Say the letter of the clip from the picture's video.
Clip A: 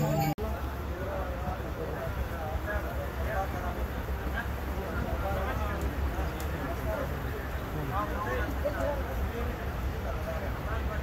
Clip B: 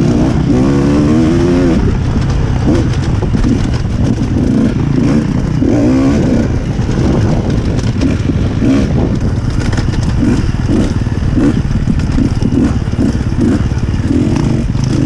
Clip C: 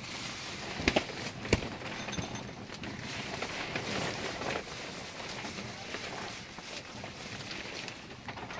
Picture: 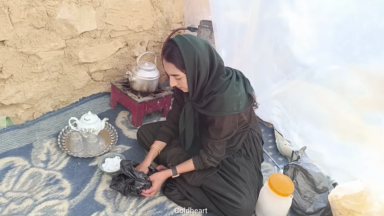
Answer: C